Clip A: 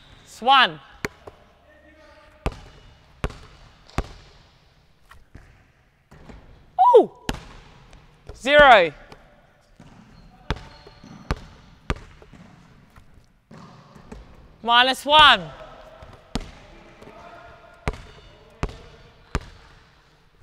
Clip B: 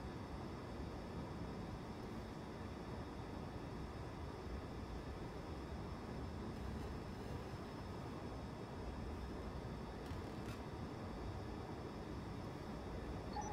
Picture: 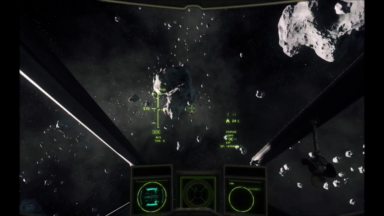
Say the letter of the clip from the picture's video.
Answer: B